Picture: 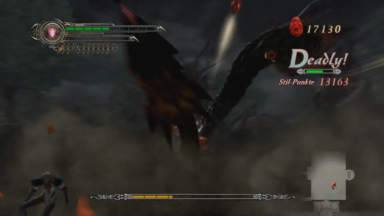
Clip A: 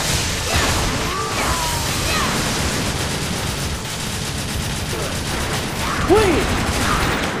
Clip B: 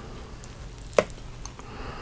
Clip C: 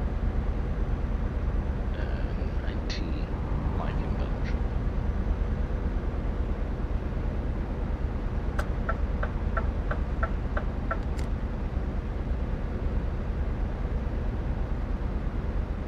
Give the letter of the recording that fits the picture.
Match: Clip A